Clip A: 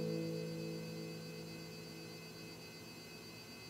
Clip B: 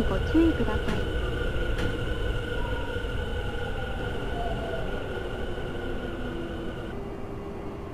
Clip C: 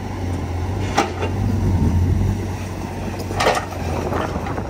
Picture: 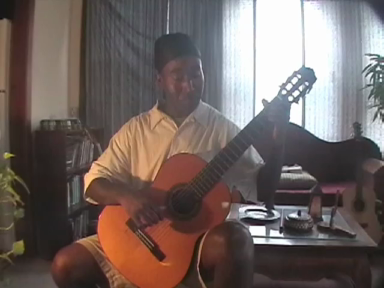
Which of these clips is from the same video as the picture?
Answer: A